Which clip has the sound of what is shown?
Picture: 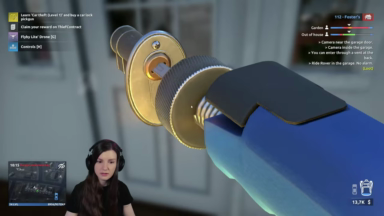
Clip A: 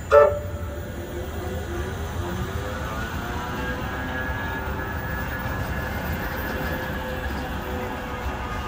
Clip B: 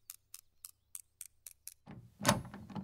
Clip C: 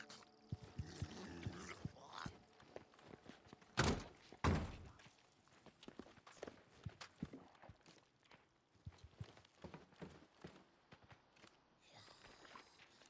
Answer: B